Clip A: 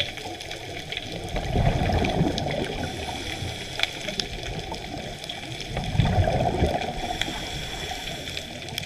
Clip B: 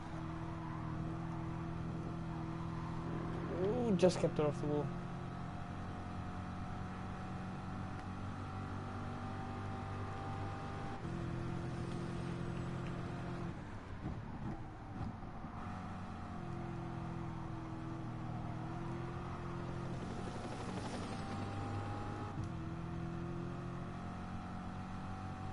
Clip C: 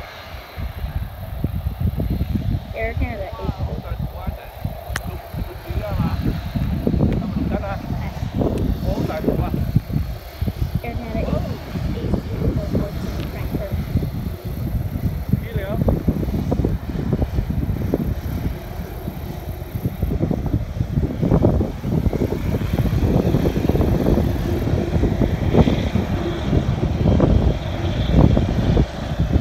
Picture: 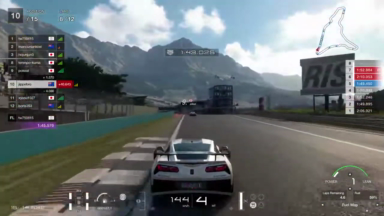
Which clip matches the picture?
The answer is B